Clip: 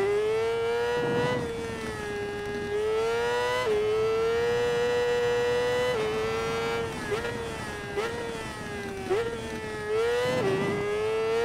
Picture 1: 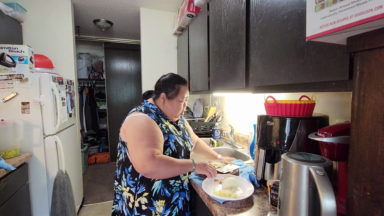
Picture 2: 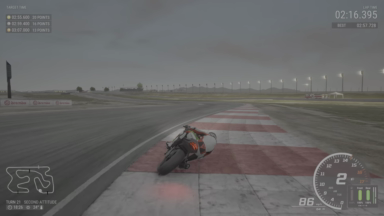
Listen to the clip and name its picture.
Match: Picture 2